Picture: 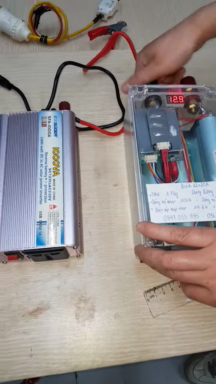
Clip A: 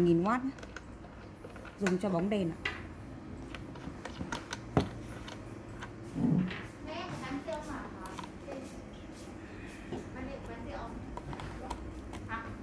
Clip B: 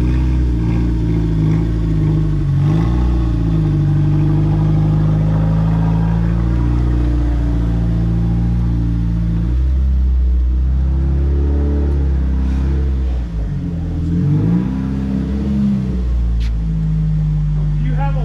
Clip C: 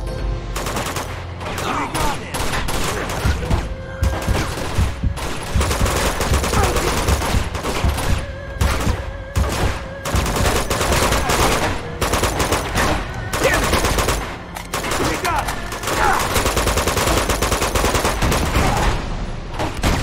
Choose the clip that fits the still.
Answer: A